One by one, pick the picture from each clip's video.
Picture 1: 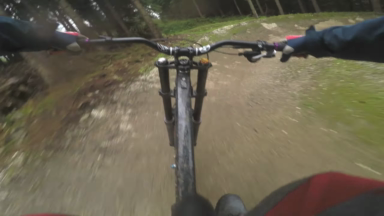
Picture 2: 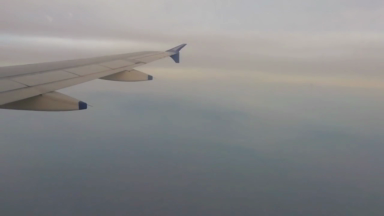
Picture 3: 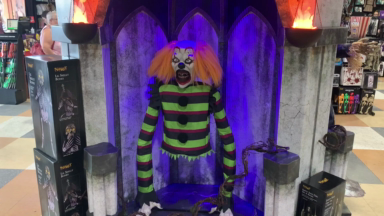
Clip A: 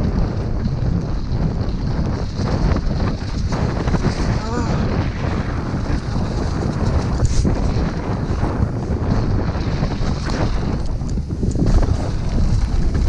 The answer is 1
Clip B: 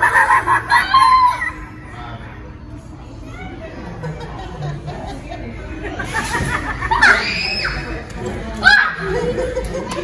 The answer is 3